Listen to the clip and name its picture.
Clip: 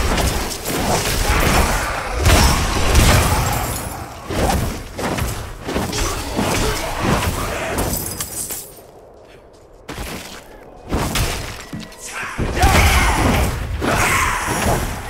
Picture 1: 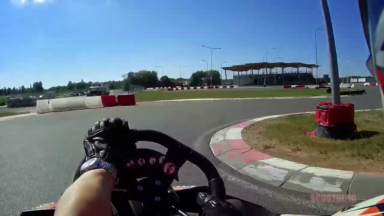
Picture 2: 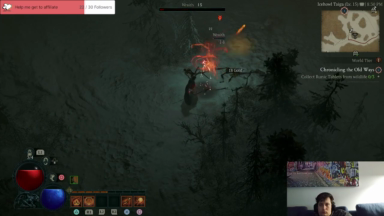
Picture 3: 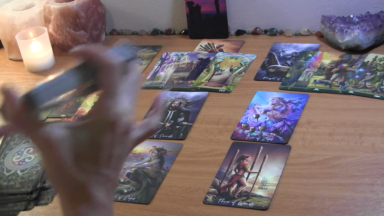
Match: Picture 2